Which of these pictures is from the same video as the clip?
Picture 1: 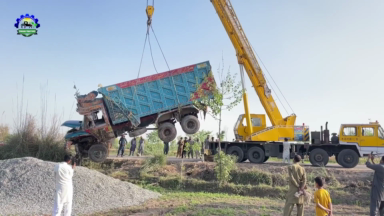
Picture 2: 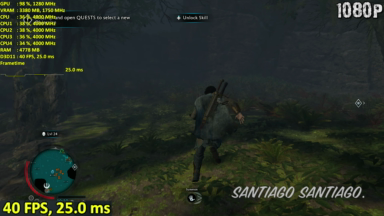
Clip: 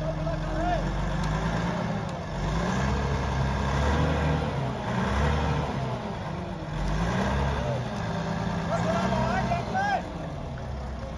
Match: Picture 1